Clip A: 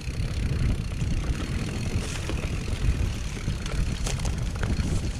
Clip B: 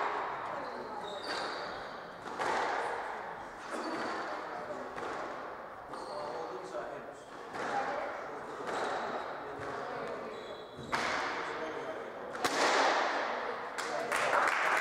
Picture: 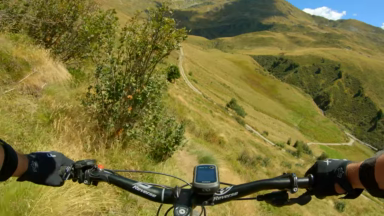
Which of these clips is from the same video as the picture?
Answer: A